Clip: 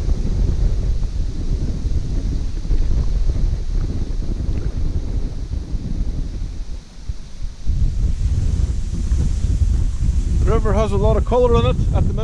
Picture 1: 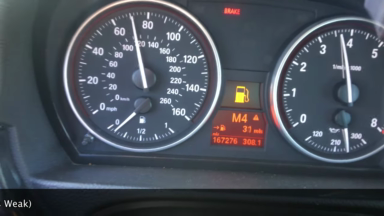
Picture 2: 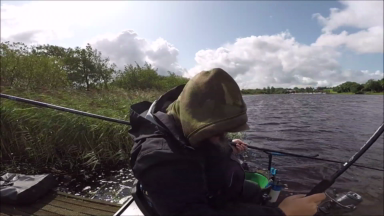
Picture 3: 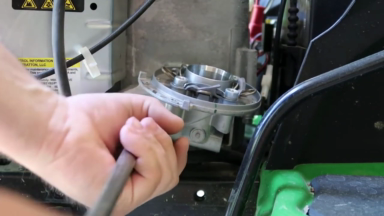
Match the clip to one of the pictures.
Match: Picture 2